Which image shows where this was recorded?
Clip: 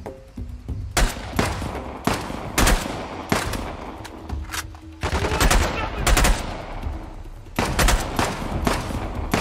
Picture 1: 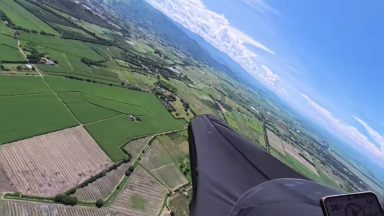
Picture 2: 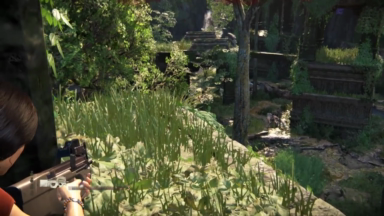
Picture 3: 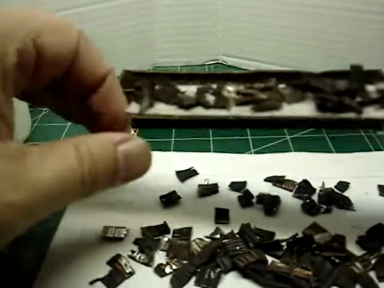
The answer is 2